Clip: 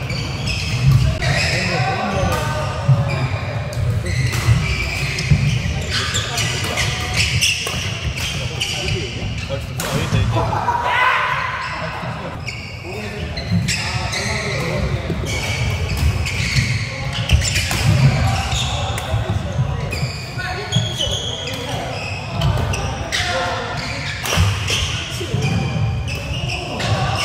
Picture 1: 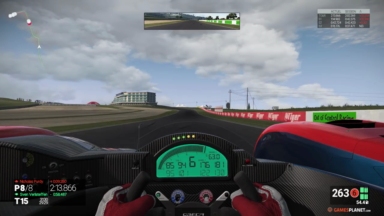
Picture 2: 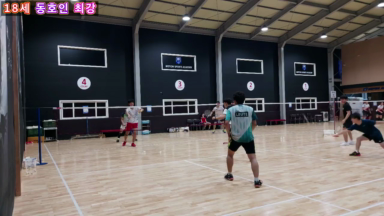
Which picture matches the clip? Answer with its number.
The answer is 2